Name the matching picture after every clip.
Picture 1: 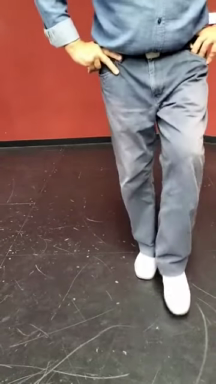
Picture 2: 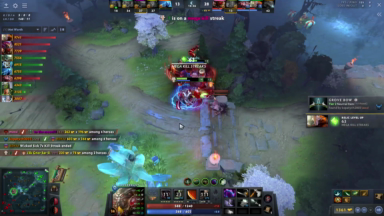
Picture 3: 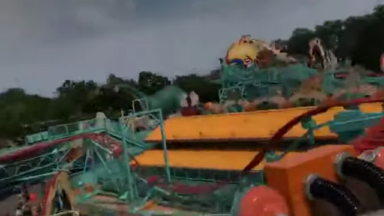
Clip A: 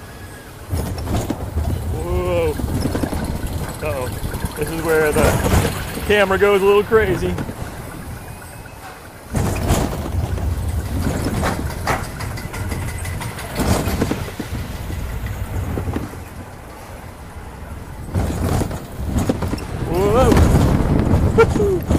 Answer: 3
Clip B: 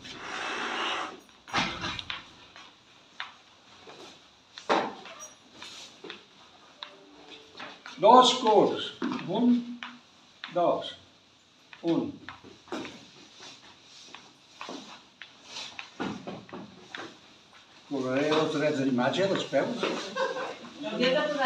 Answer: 1